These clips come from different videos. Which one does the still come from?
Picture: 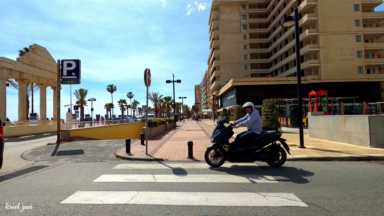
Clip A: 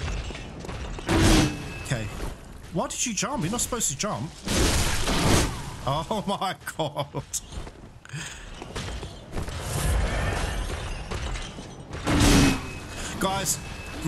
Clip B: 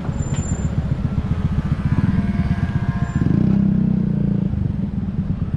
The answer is B